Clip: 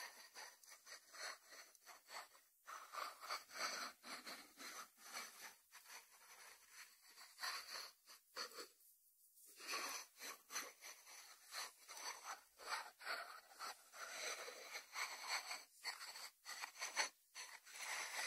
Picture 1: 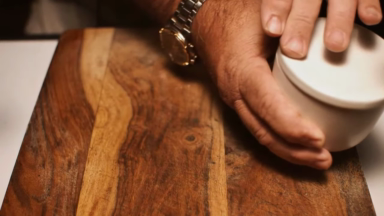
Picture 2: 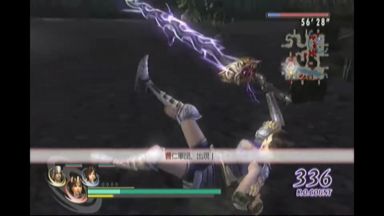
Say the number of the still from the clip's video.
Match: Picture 1